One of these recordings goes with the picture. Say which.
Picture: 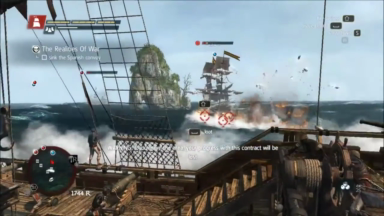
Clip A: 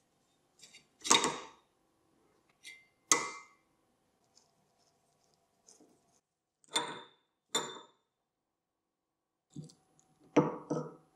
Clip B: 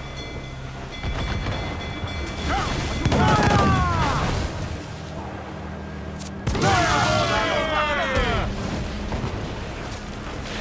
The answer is B